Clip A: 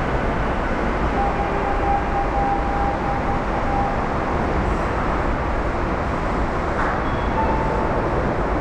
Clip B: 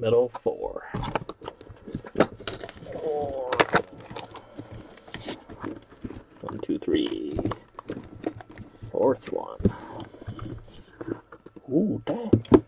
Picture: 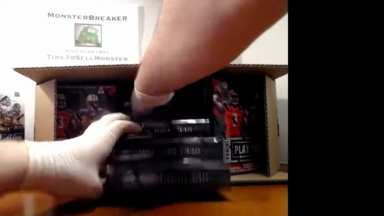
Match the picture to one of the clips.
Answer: B